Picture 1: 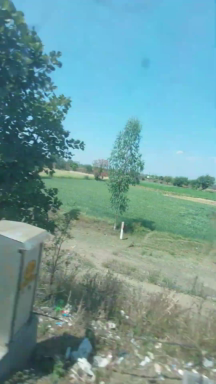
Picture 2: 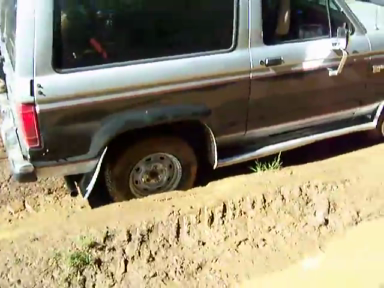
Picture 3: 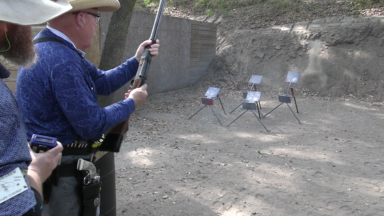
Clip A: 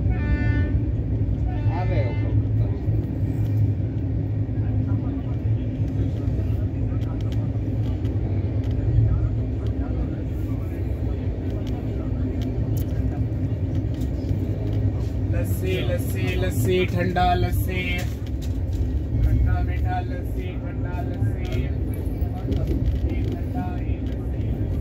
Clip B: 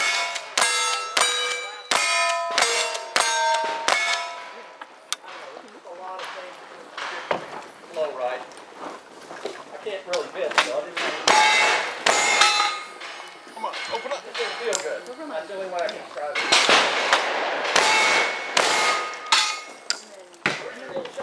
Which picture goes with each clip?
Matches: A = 1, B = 3